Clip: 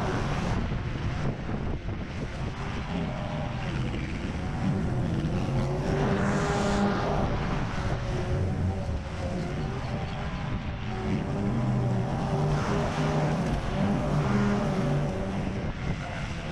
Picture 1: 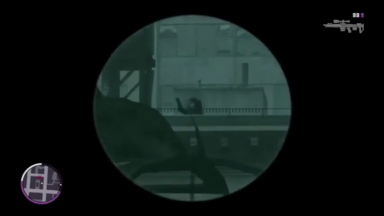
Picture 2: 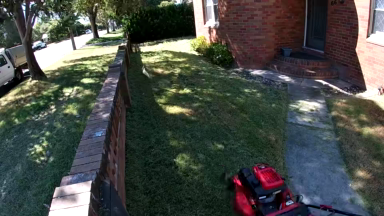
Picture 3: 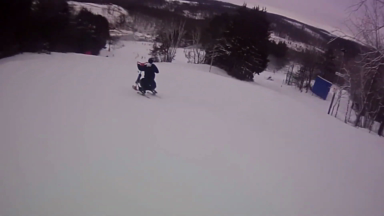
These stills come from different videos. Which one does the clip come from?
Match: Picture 2